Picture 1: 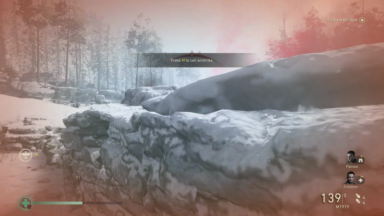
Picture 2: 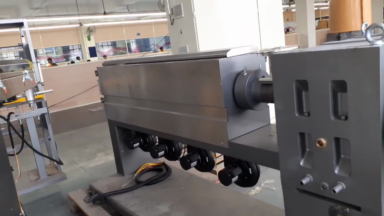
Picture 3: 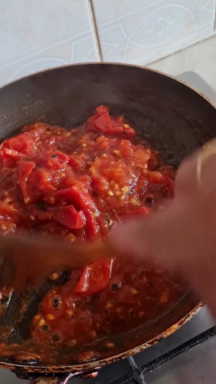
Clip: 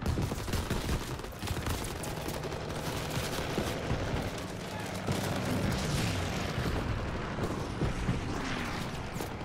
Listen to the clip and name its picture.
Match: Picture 1